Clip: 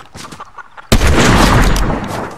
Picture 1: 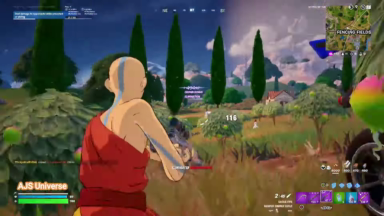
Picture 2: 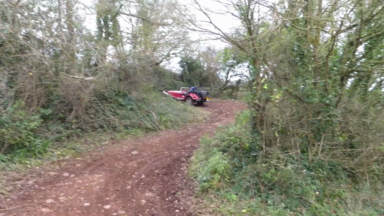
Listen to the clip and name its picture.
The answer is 1